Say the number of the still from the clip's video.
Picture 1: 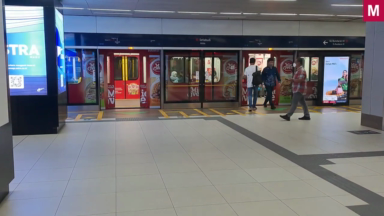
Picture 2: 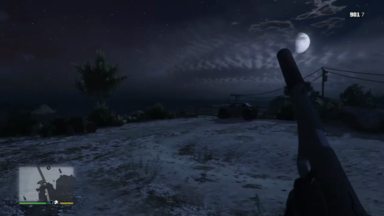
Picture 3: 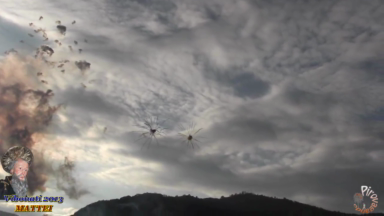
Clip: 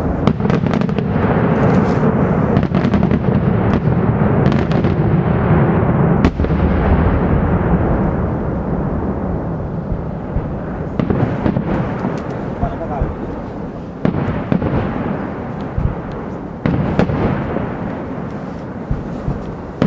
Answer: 3